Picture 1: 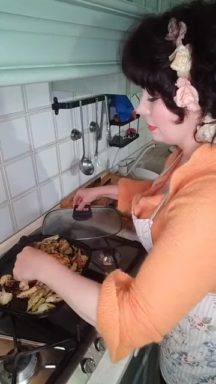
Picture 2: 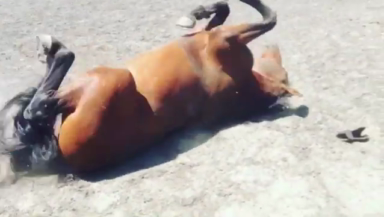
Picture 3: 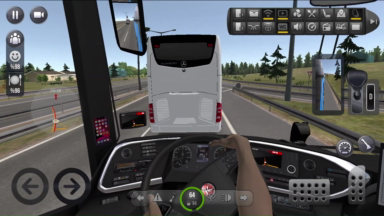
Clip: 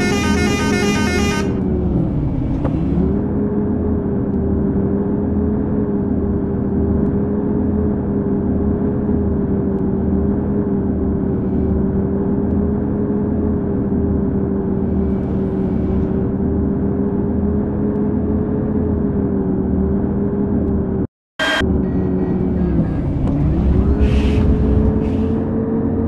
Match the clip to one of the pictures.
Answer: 3